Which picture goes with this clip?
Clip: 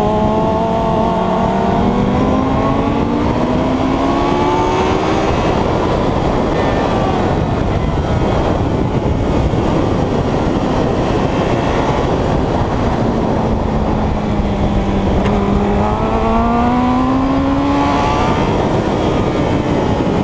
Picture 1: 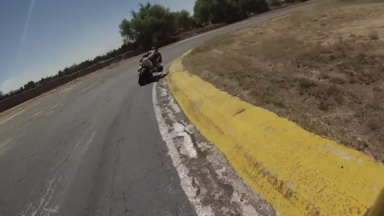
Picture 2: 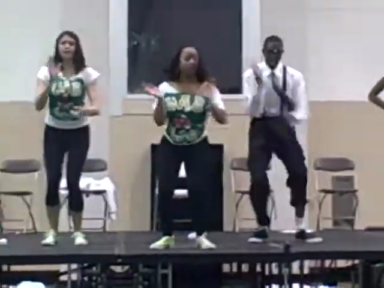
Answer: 1